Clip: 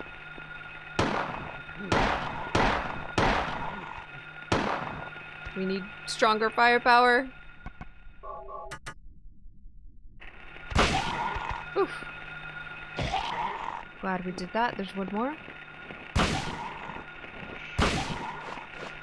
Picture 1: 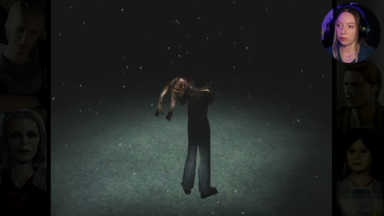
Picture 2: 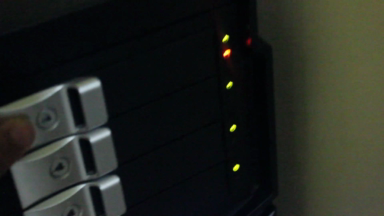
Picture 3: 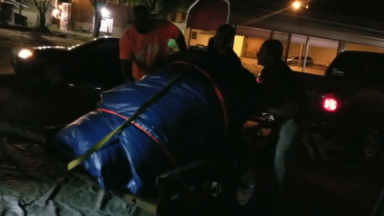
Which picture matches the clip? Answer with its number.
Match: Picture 1